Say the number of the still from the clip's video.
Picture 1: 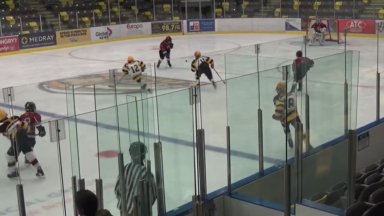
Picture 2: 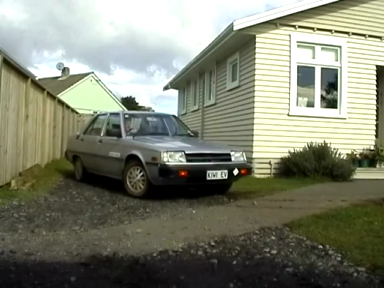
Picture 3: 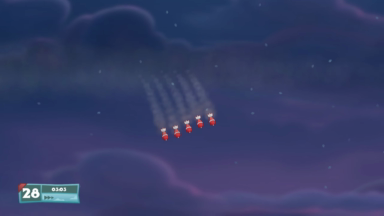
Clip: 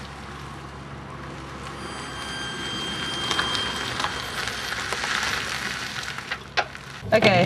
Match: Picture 2